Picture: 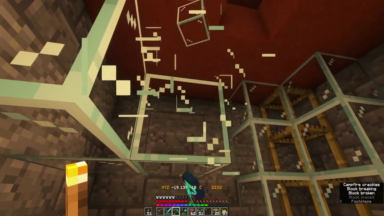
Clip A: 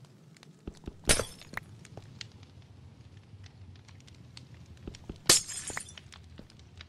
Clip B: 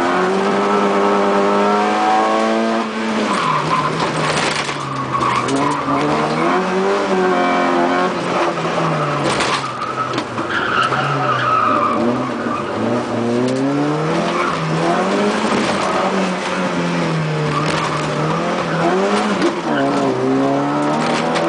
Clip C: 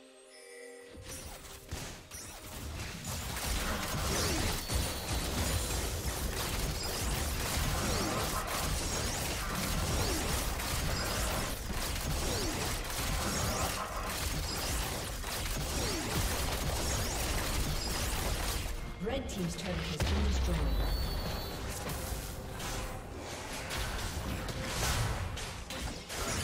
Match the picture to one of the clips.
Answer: A